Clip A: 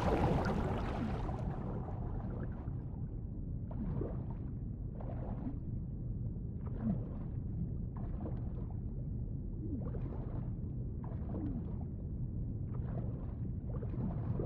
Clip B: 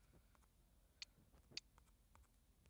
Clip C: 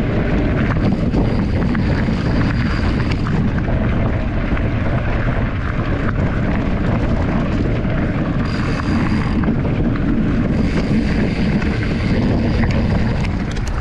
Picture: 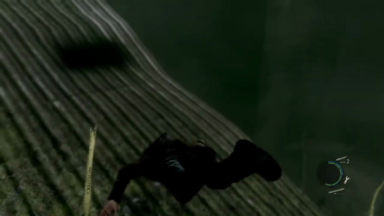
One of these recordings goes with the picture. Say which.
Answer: A